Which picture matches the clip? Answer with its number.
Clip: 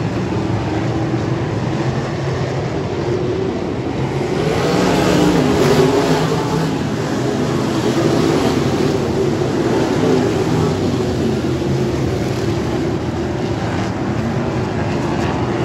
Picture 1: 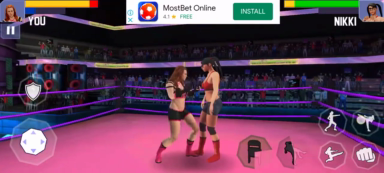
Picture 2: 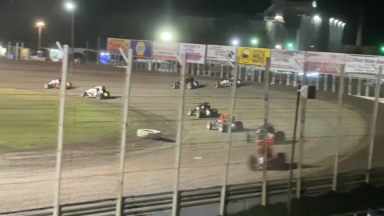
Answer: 2